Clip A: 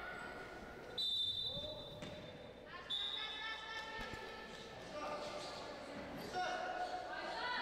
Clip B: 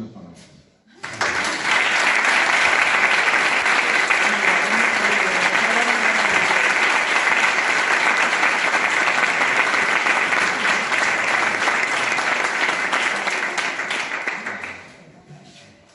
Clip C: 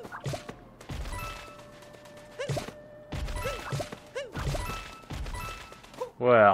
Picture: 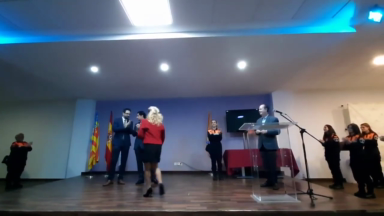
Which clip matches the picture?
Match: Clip B